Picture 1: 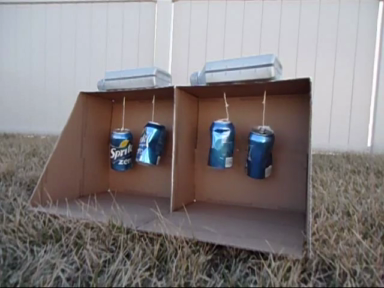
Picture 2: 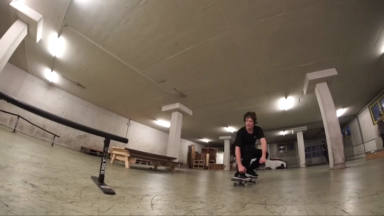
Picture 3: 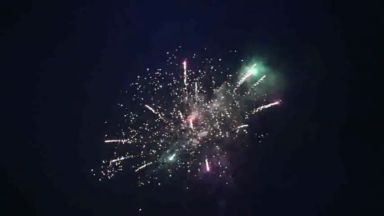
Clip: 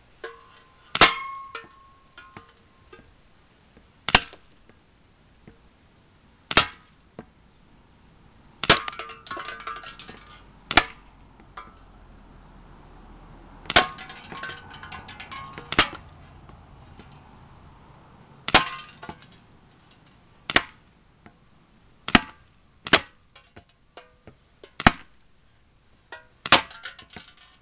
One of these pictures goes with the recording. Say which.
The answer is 1